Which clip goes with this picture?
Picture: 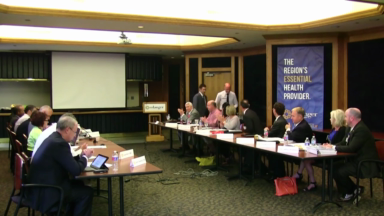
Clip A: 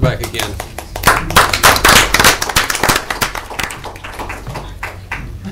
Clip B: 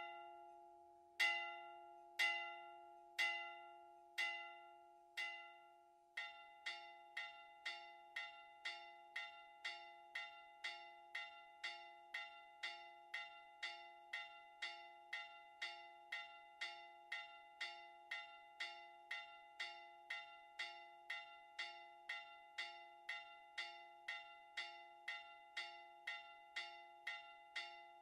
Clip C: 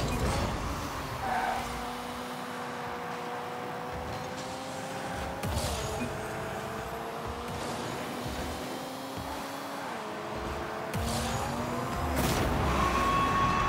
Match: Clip A